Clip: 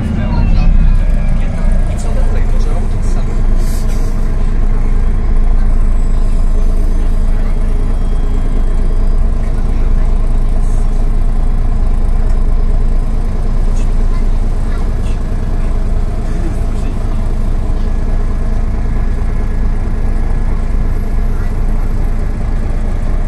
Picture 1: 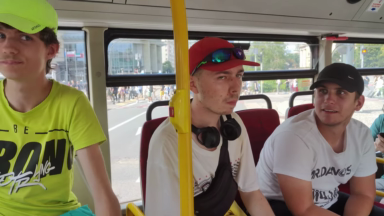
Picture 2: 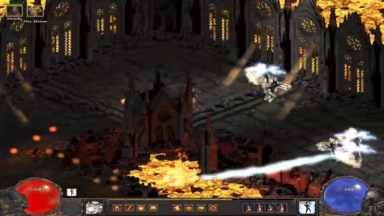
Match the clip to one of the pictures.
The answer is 1